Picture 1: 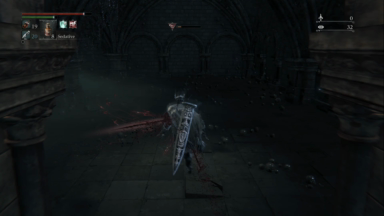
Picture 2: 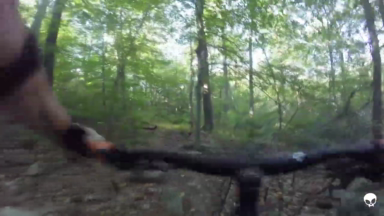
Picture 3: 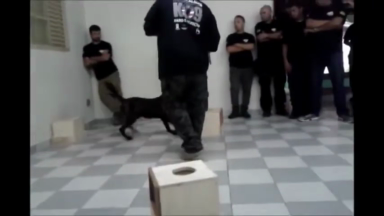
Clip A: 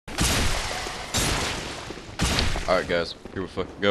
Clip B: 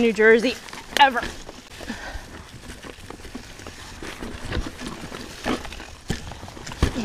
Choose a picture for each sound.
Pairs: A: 1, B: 2